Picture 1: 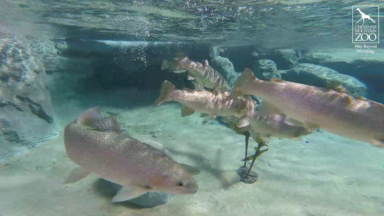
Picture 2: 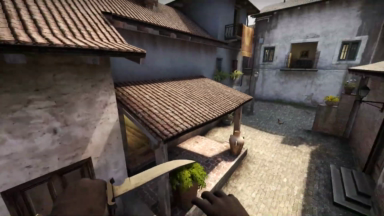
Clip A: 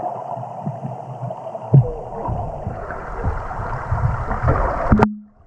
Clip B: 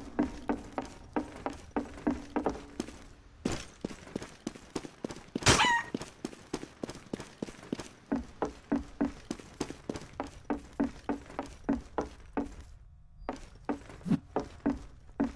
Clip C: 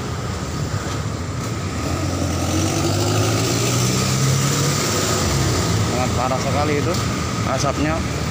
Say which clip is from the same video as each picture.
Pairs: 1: A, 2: B